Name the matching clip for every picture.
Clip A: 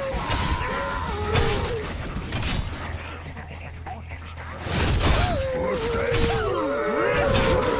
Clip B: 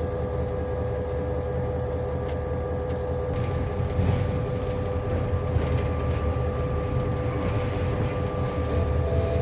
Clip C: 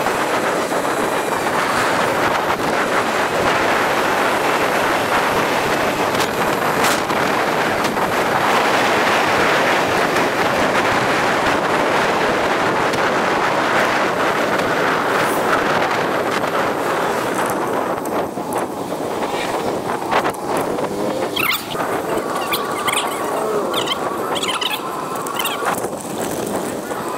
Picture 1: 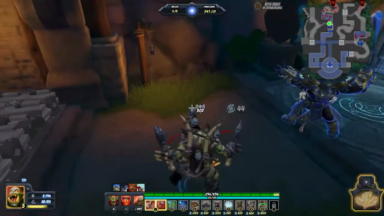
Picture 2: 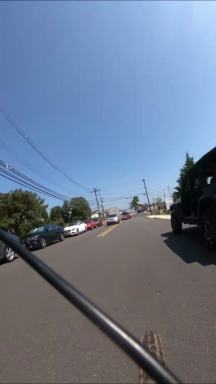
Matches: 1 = A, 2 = C